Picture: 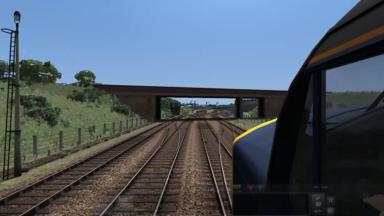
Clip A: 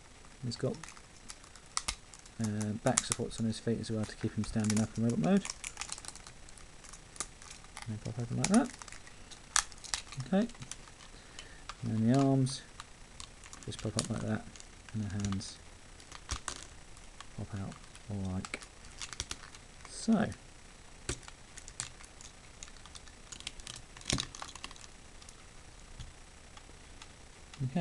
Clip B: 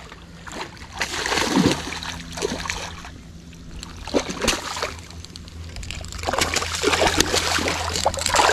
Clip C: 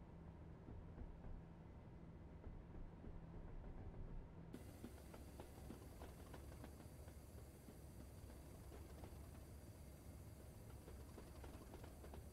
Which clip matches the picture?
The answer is C